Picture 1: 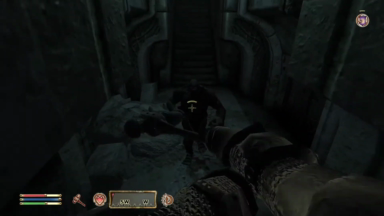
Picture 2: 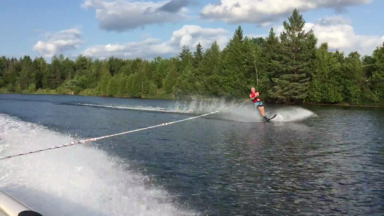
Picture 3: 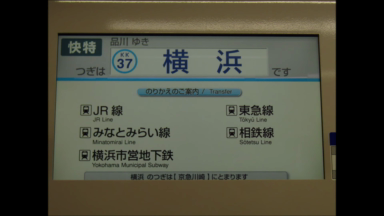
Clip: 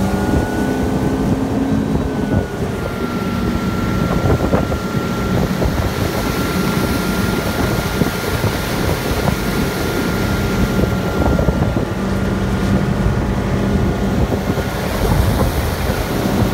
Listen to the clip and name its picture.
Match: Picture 2